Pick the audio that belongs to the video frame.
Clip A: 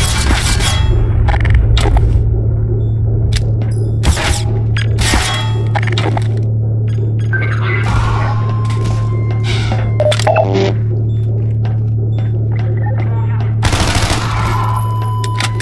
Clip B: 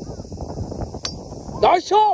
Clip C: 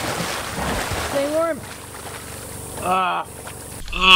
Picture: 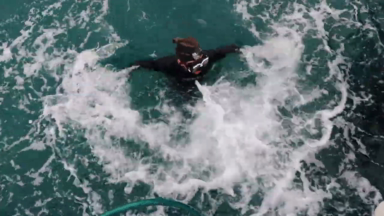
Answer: C